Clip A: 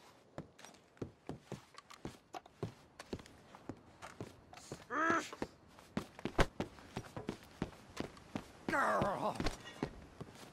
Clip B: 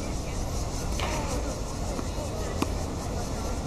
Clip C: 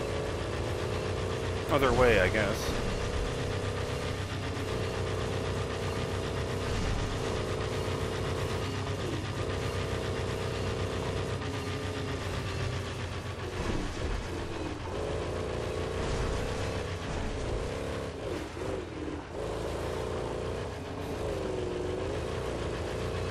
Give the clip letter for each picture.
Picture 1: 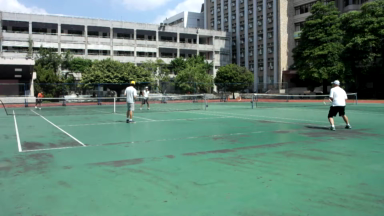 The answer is B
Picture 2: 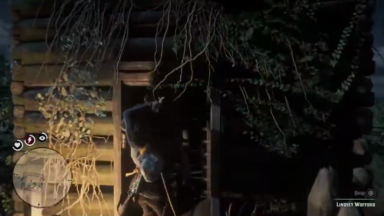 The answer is A